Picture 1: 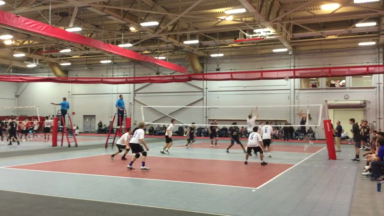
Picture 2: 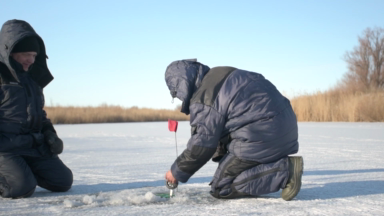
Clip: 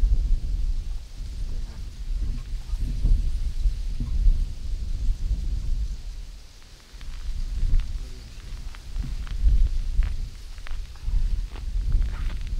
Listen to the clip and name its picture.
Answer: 2